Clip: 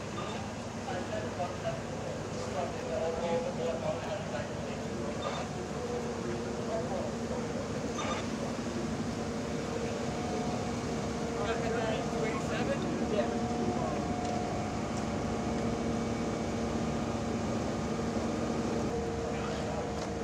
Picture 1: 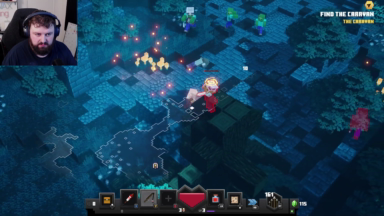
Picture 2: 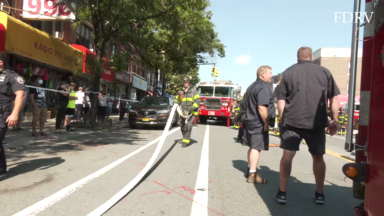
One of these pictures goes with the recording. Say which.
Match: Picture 2